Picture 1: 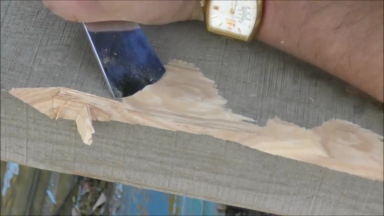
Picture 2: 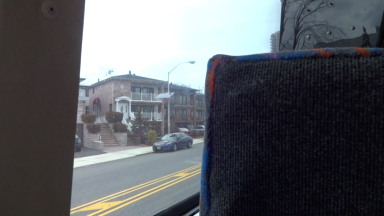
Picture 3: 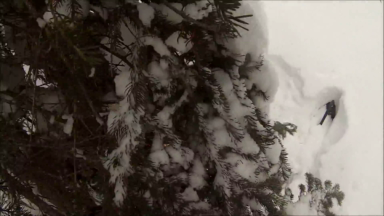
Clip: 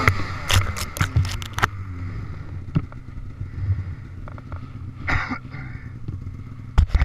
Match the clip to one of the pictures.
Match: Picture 3